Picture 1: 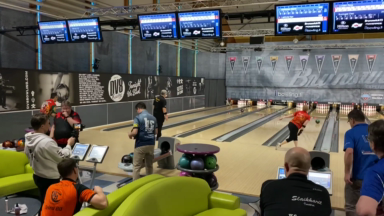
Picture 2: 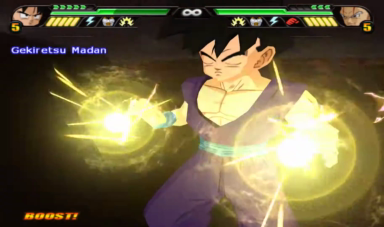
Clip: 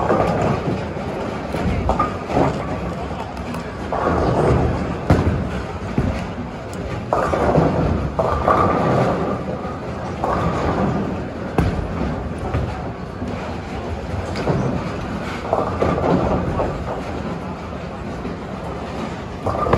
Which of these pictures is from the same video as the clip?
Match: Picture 1